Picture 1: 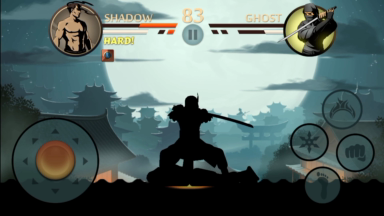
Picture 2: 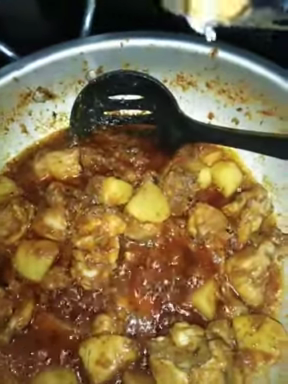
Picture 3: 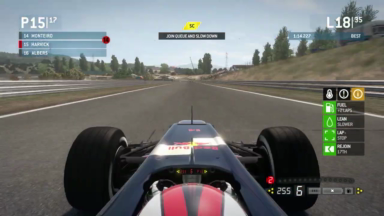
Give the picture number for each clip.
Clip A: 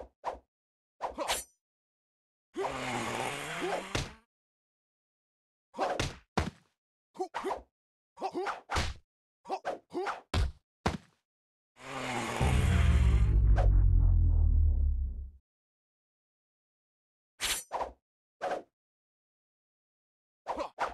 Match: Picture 1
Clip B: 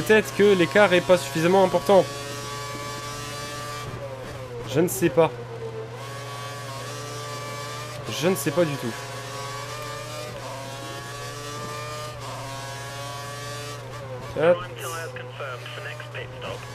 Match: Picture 3